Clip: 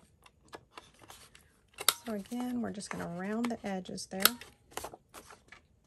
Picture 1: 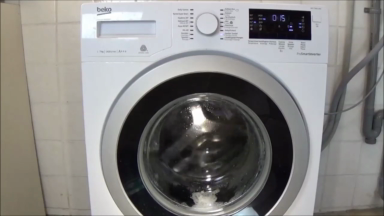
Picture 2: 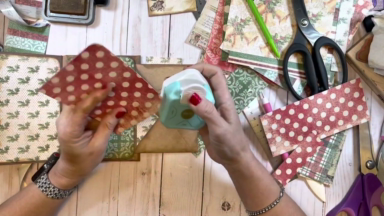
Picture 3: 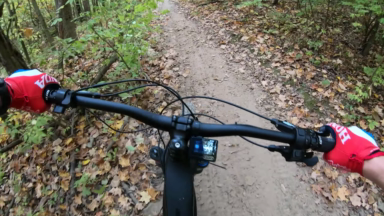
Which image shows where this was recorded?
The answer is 2